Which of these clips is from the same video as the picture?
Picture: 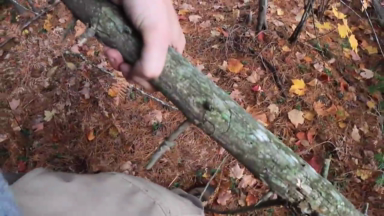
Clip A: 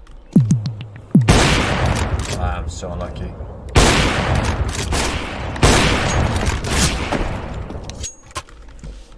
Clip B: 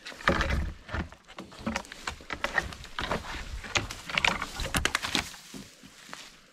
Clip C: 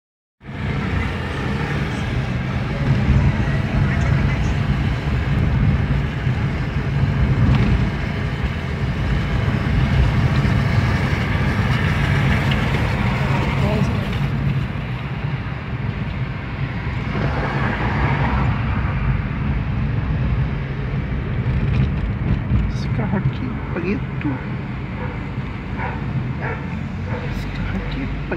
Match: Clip B